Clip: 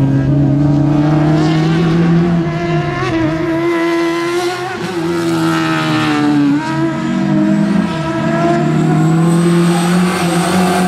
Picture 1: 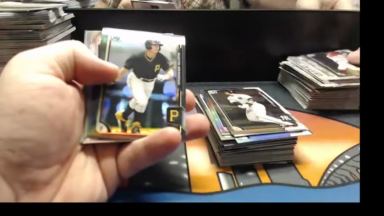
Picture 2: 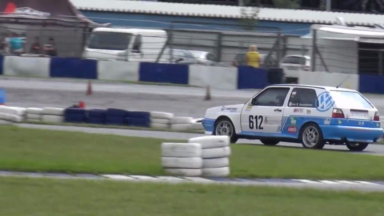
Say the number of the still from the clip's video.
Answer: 2